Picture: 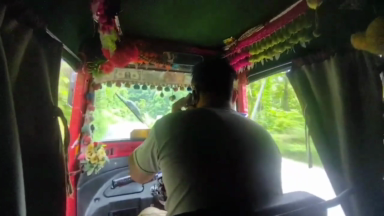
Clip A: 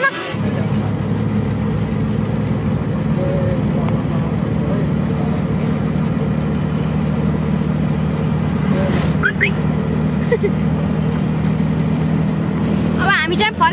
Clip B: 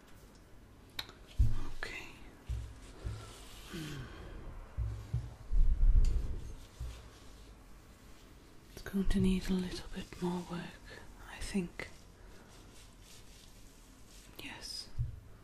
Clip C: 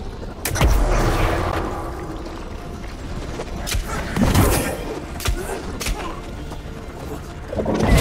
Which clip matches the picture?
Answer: A